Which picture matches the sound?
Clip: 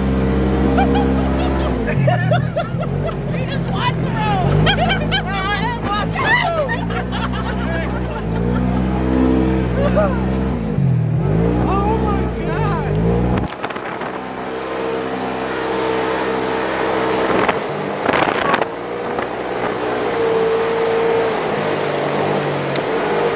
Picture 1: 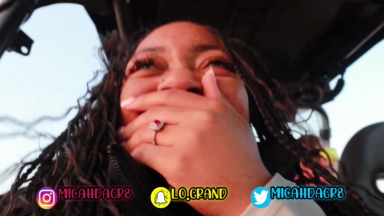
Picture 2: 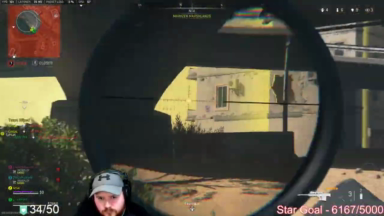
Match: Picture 1